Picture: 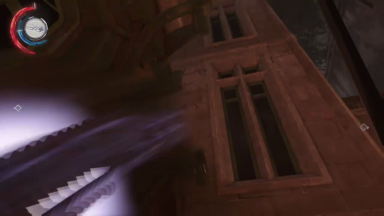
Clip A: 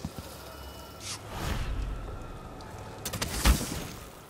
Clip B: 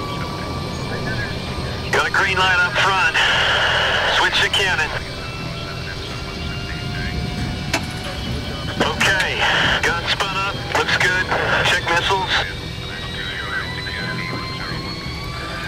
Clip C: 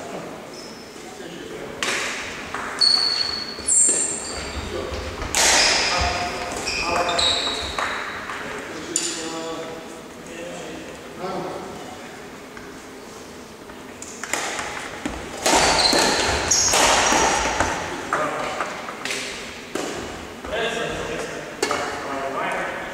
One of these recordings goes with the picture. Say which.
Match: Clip A